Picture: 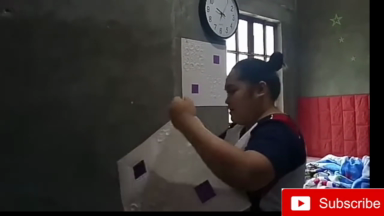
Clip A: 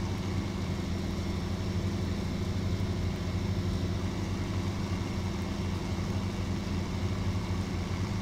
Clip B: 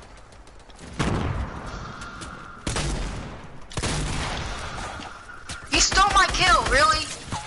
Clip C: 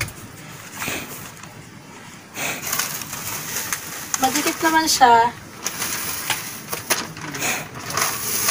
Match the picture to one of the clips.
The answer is C